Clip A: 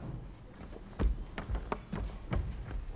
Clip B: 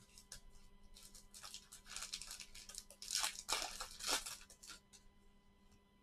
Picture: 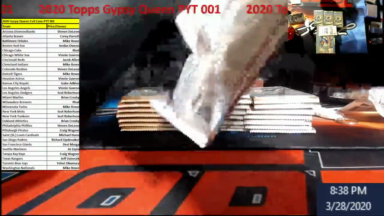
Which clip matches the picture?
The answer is B